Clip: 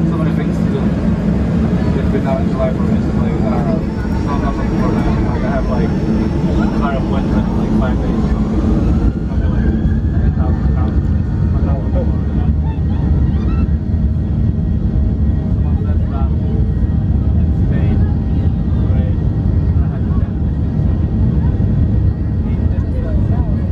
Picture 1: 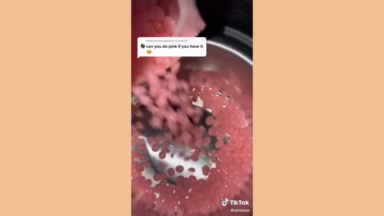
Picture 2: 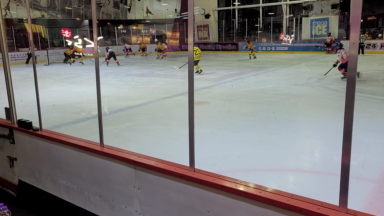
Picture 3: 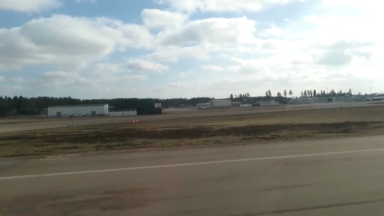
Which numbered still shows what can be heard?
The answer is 3